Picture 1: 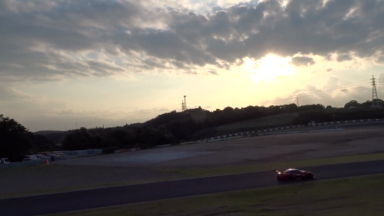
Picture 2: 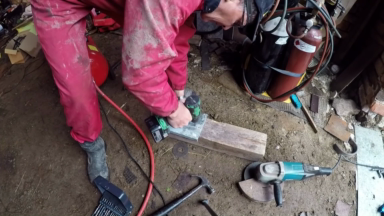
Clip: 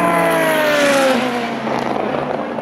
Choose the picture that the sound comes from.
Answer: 1